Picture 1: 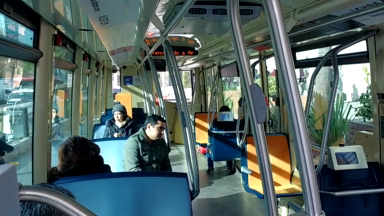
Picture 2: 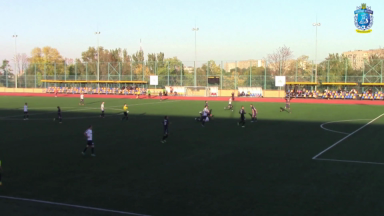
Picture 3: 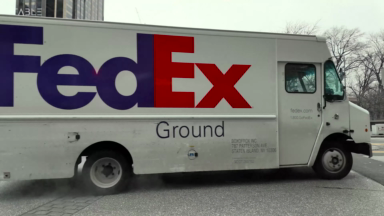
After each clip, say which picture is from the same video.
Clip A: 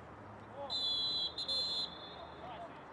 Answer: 2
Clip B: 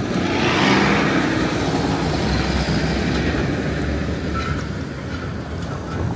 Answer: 3